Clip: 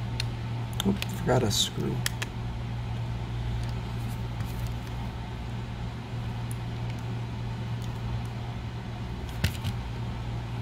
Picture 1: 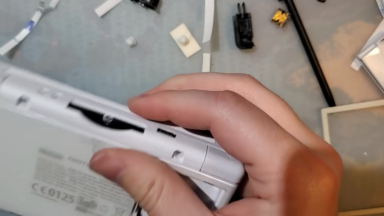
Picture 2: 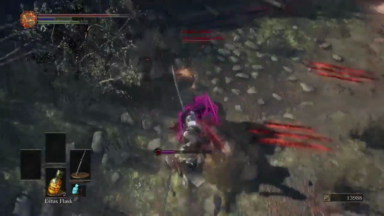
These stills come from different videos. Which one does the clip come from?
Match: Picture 1